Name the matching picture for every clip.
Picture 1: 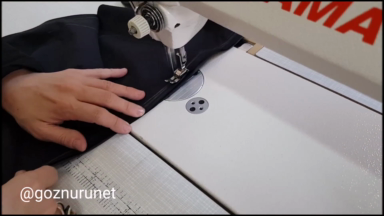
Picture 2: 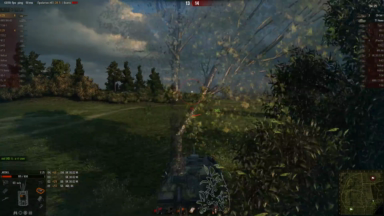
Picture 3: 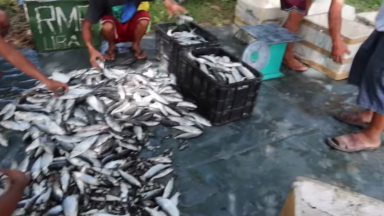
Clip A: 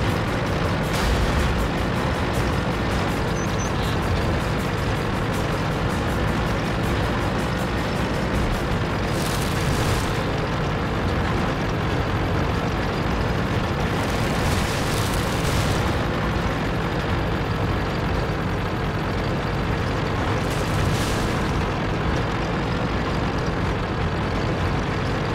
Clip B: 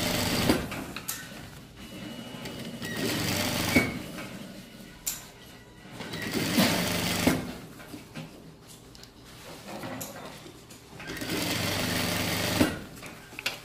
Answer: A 2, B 1